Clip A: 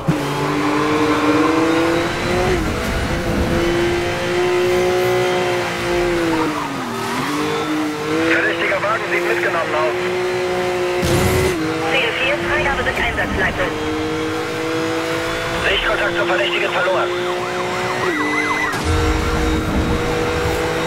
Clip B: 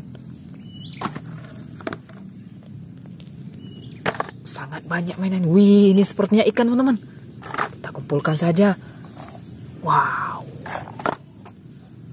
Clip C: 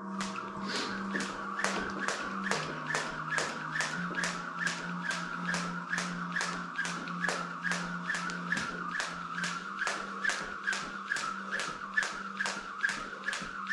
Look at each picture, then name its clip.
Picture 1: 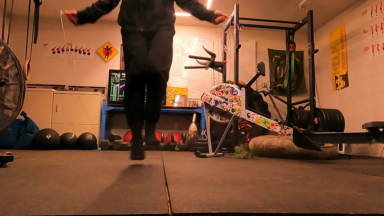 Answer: C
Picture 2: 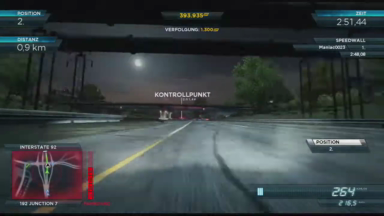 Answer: A